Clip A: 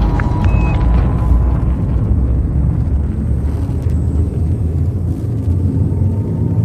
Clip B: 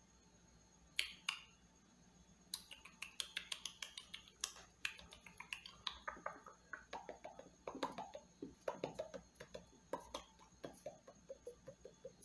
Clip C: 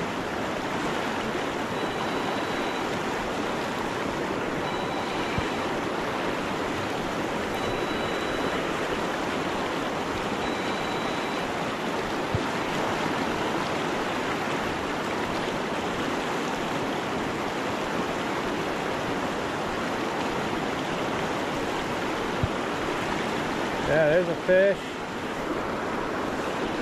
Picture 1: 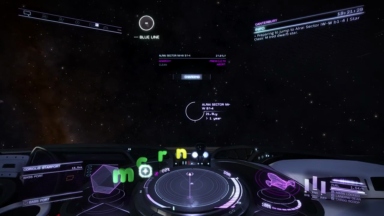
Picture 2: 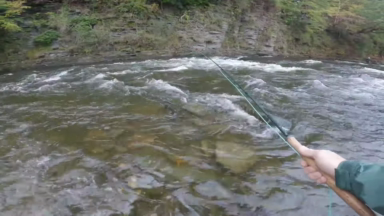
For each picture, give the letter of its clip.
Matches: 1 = A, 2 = C